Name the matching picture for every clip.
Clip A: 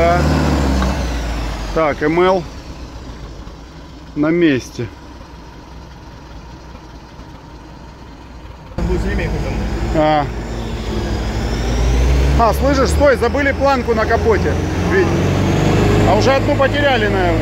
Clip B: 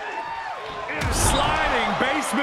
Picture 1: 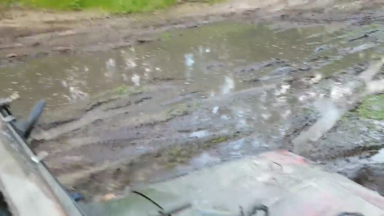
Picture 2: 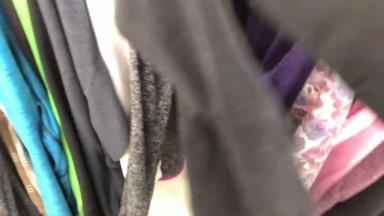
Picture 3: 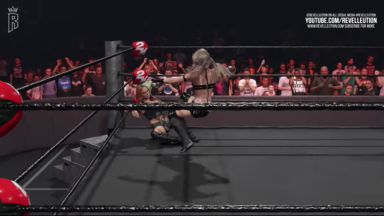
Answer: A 1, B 3